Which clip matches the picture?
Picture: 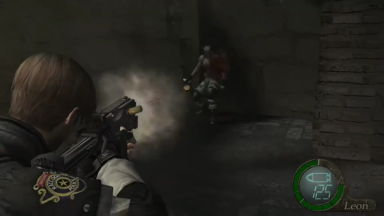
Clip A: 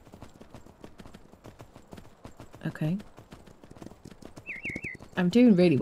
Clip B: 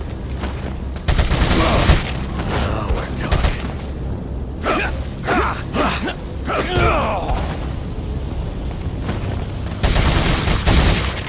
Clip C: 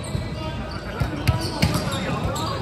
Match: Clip B